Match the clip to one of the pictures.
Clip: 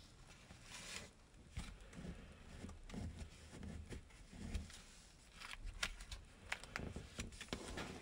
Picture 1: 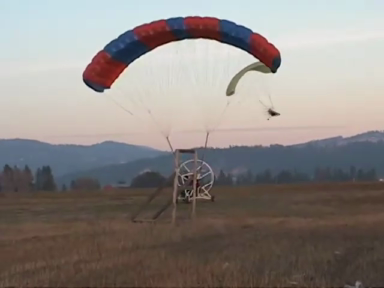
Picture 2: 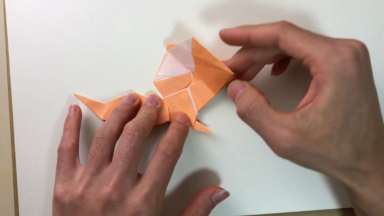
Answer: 2